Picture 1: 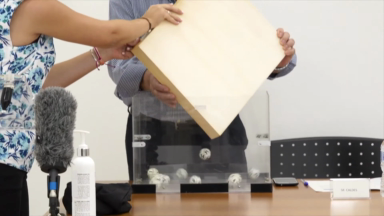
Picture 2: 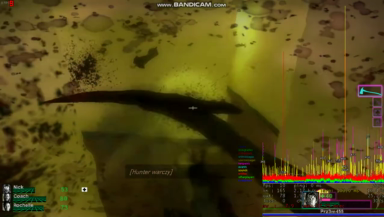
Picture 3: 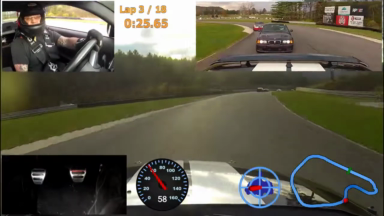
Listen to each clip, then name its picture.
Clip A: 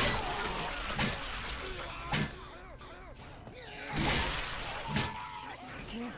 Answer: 2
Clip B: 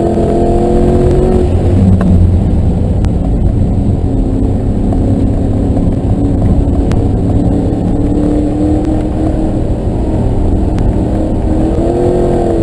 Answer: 3